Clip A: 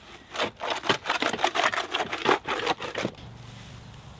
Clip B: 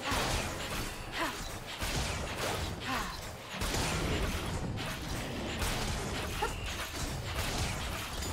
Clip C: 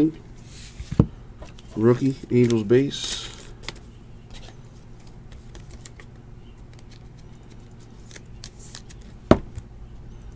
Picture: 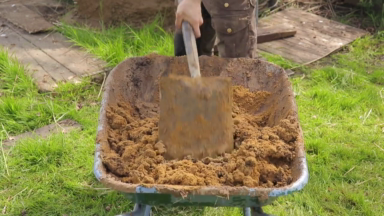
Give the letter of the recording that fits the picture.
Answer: A